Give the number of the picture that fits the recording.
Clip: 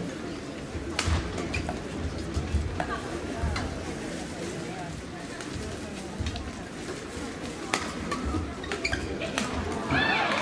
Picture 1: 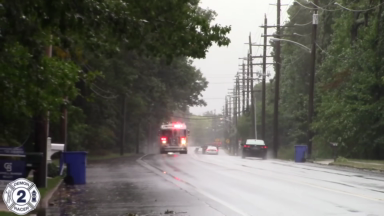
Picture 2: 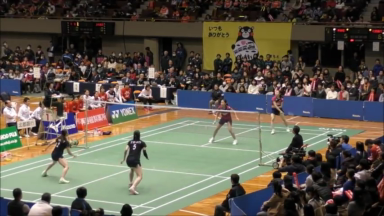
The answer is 2